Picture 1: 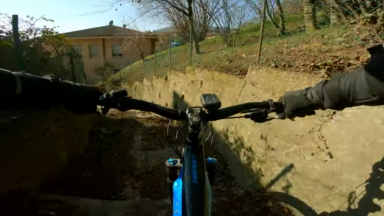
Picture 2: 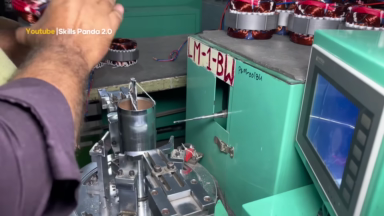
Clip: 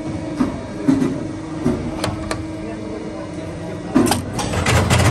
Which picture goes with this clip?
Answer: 2